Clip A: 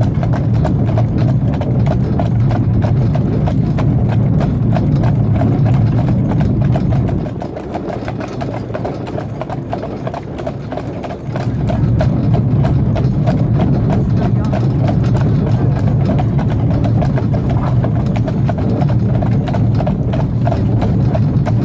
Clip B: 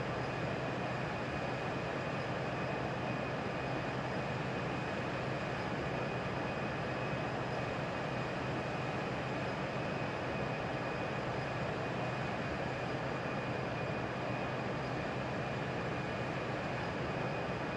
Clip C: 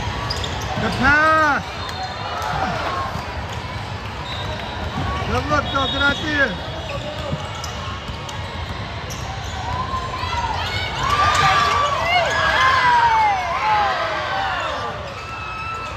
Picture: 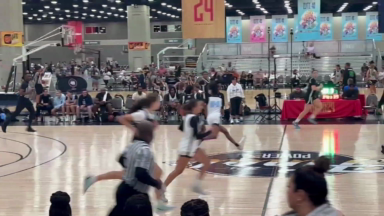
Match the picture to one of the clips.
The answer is C